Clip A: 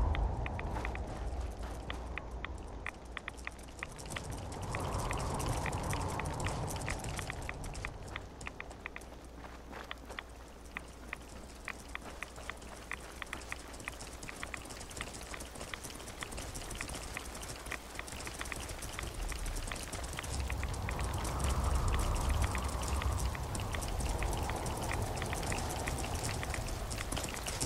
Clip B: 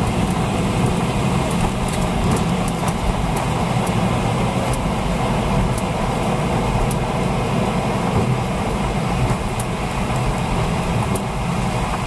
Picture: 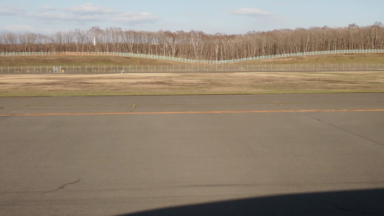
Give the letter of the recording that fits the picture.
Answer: B